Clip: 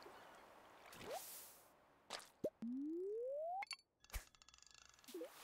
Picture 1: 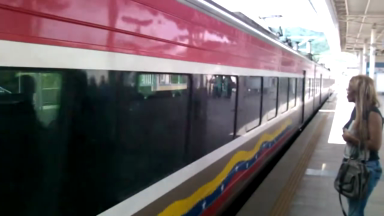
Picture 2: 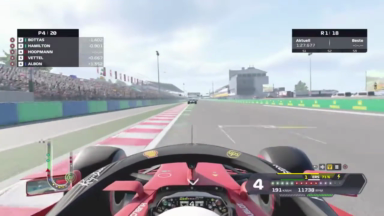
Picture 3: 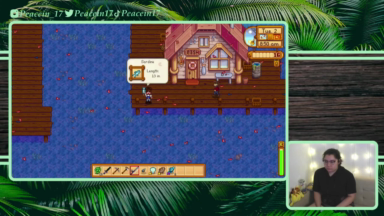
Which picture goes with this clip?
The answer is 3